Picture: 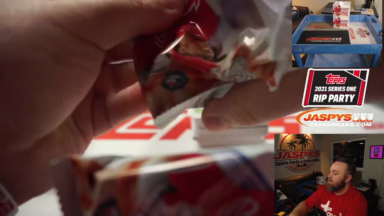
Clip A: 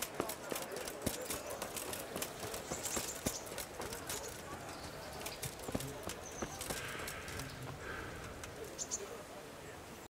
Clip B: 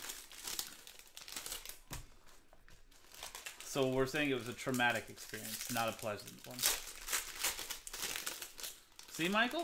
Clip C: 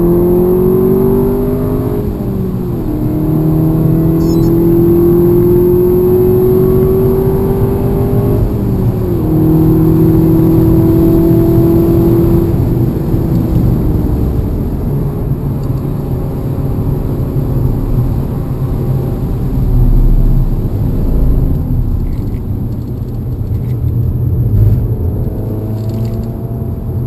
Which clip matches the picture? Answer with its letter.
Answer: B